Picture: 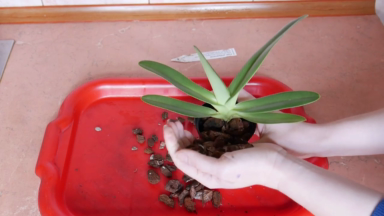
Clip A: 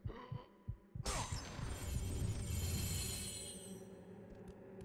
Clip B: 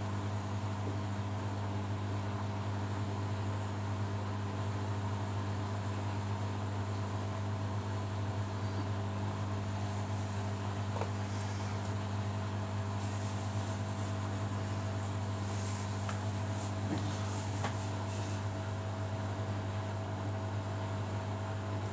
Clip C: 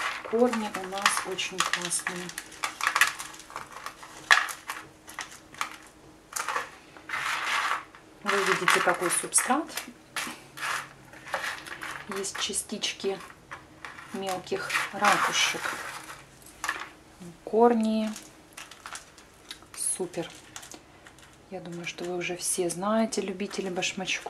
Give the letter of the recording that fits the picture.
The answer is C